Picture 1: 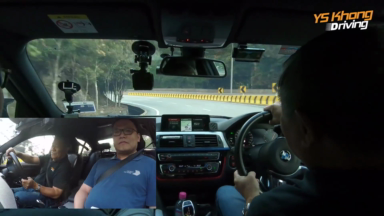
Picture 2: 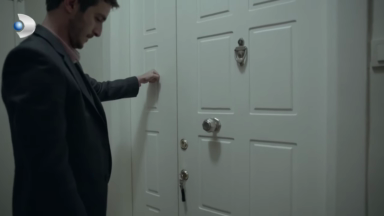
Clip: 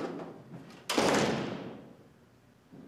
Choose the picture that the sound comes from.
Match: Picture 2